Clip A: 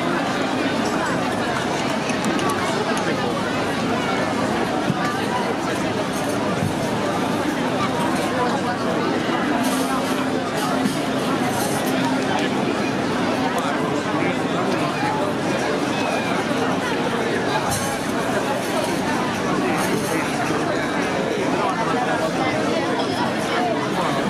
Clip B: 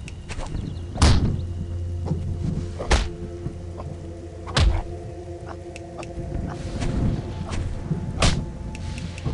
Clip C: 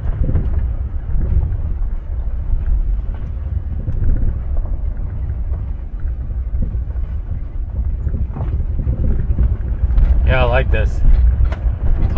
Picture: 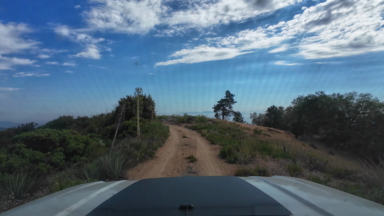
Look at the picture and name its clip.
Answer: C